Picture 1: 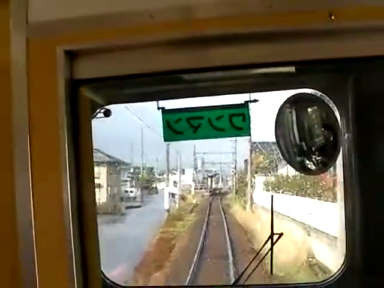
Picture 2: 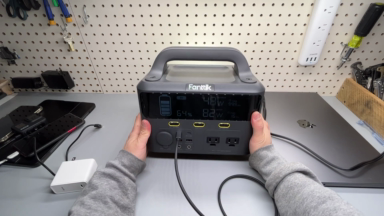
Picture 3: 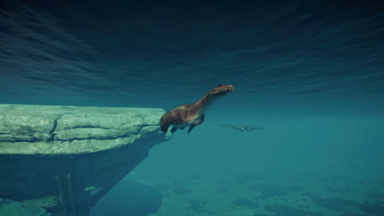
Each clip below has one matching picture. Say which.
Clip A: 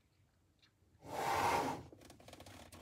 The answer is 2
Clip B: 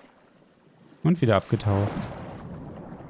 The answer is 3